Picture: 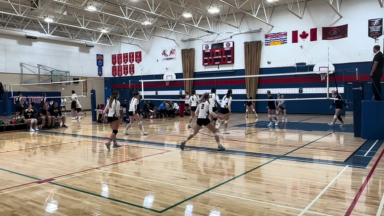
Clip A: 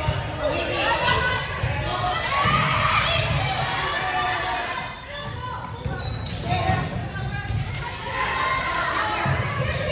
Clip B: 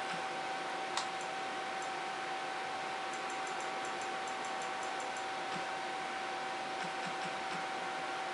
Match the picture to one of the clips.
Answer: A